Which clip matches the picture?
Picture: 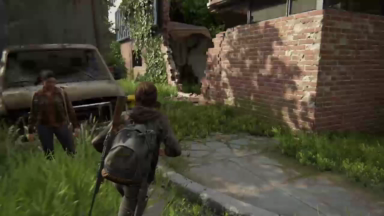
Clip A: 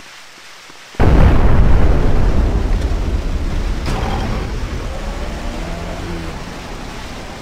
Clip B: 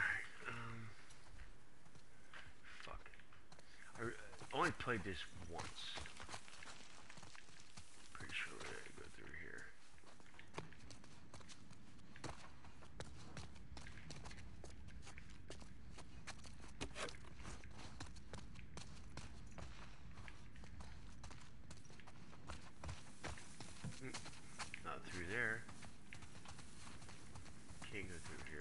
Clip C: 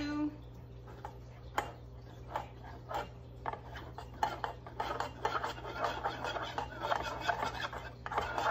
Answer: B